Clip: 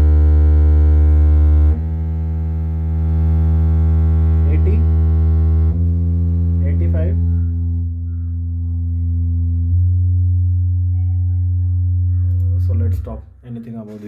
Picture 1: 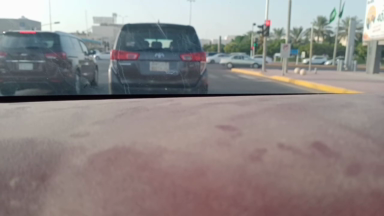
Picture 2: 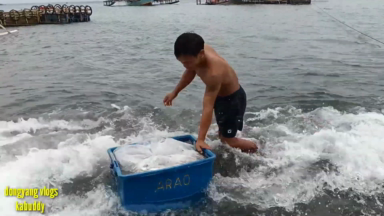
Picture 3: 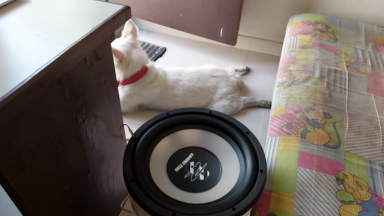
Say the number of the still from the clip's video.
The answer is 3